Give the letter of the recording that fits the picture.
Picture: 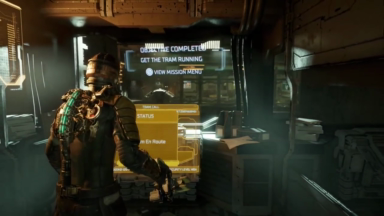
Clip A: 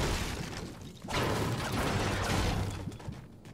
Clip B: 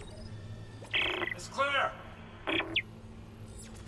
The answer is B